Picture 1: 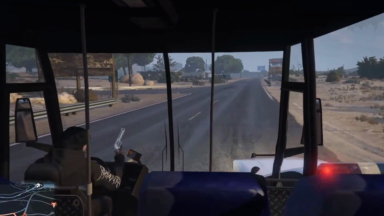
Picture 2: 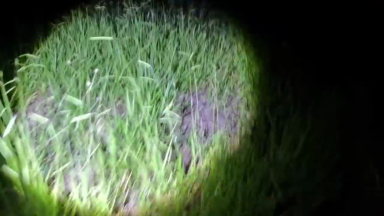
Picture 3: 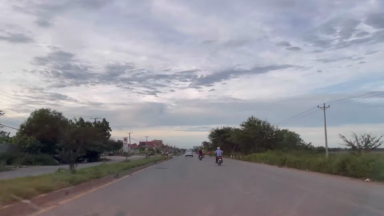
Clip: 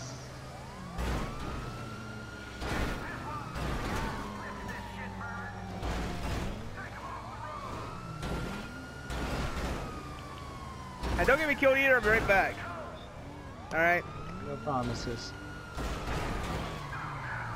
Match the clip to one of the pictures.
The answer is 1